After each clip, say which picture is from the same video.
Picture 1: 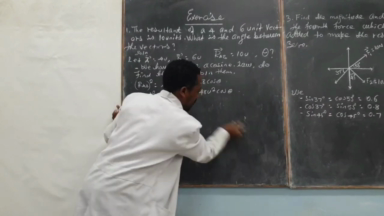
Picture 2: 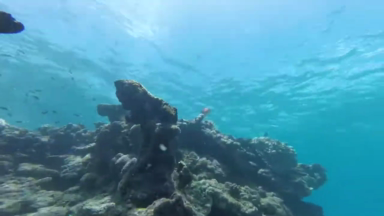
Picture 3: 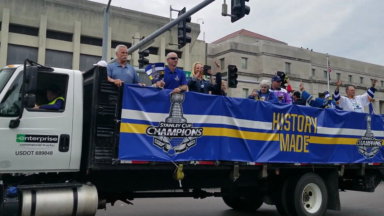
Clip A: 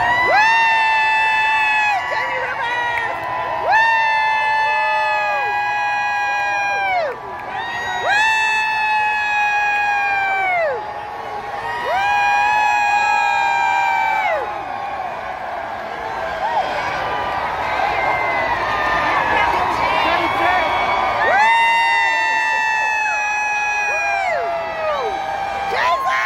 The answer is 3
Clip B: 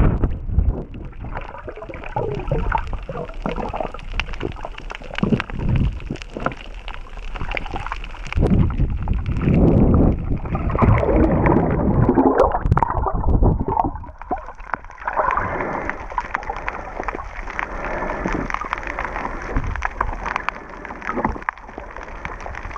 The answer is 2